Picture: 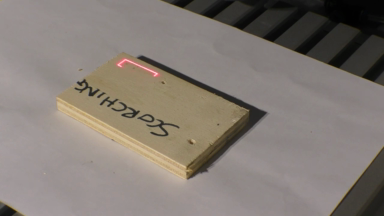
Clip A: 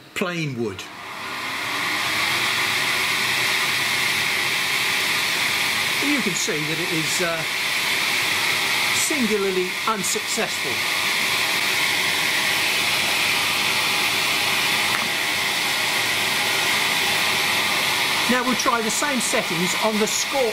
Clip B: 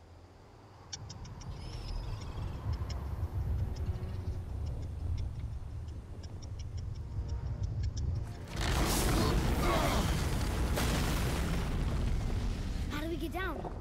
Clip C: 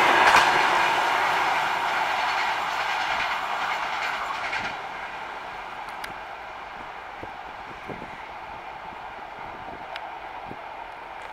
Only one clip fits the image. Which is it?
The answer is A